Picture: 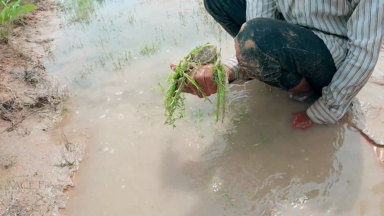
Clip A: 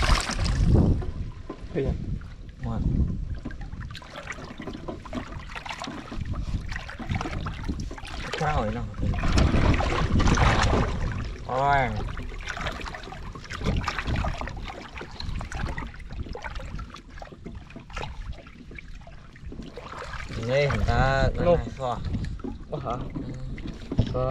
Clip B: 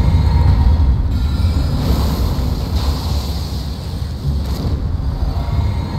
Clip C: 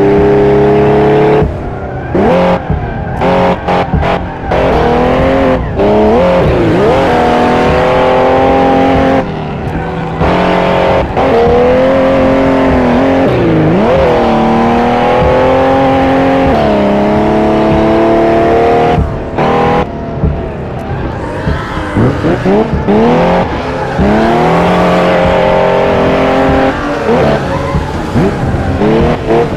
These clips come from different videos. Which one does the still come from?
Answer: A